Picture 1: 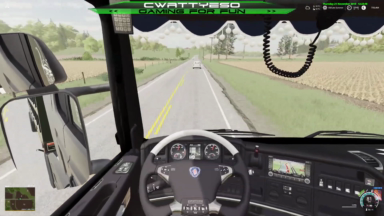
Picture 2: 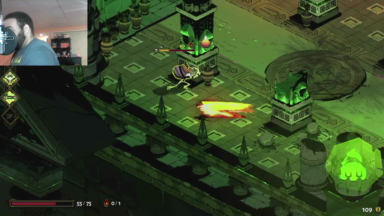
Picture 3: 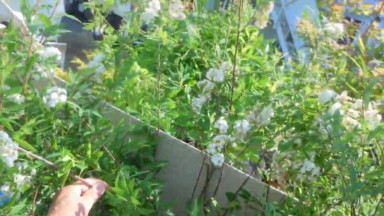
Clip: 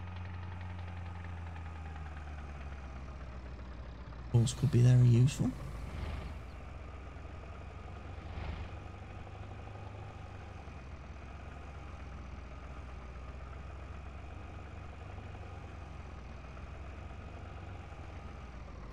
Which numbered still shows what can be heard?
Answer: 1